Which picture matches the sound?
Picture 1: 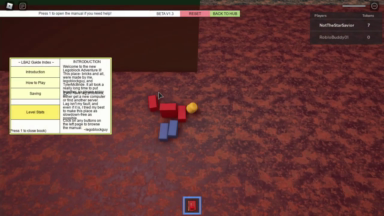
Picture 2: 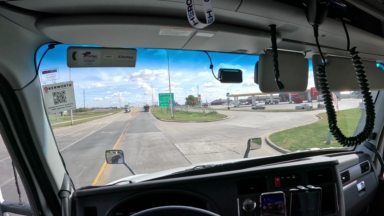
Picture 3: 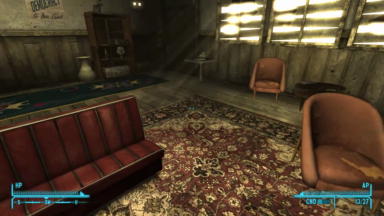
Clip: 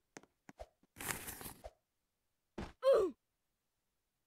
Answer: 1